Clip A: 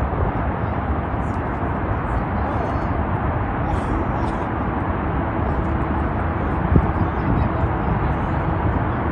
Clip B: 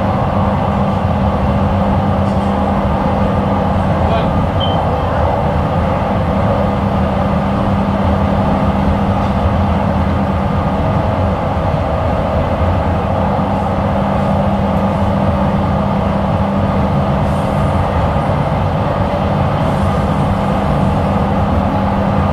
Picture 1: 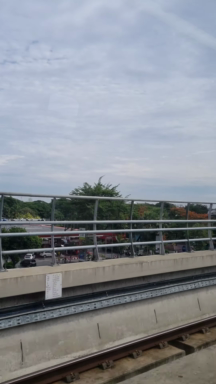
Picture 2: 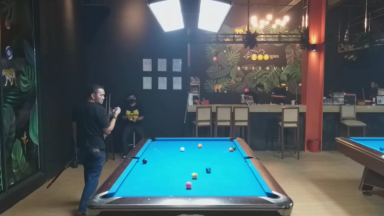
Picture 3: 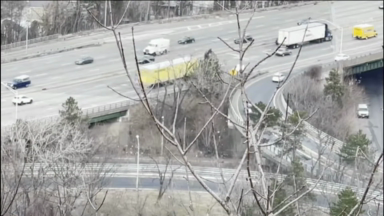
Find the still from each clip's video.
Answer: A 3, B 1